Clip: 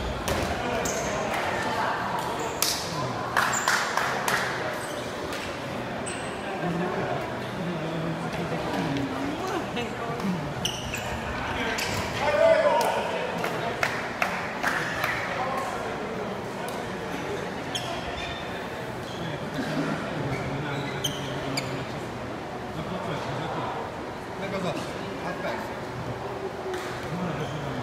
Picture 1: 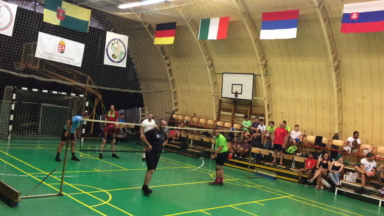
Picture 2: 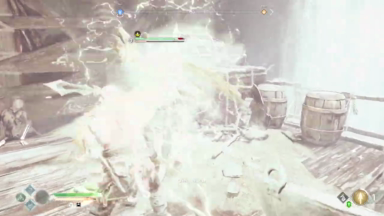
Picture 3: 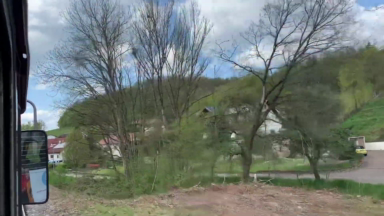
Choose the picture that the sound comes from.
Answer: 1